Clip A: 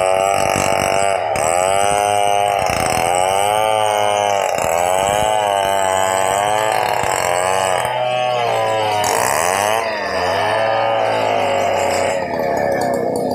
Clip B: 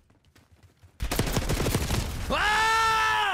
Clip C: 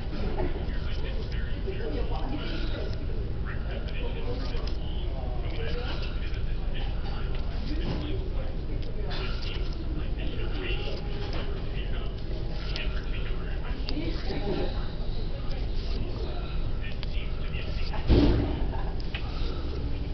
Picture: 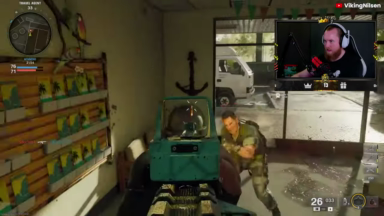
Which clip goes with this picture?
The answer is B